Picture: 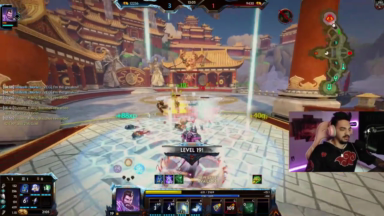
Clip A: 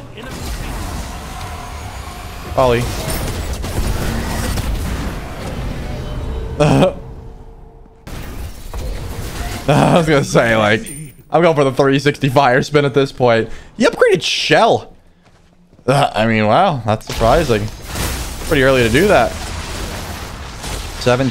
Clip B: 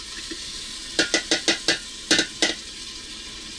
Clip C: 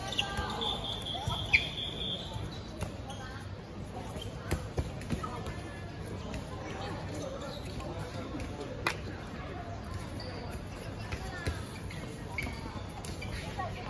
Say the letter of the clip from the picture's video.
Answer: A